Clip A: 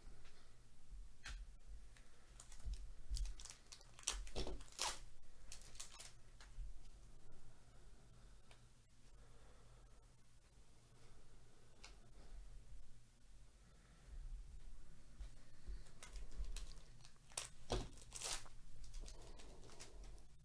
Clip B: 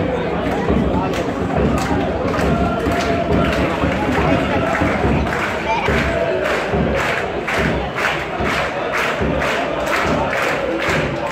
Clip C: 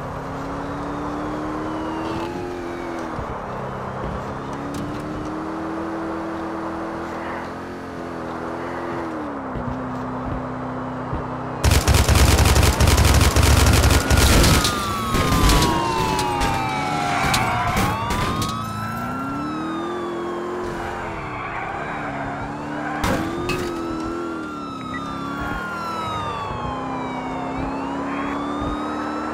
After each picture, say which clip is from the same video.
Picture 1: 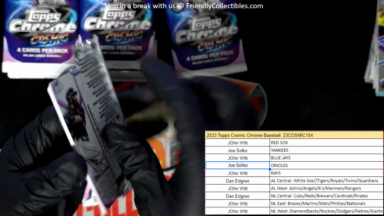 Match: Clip A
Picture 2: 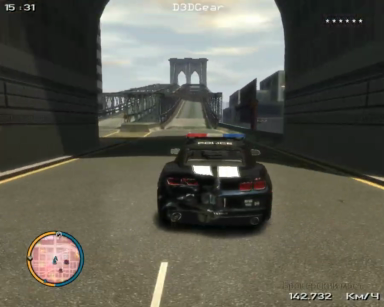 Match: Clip C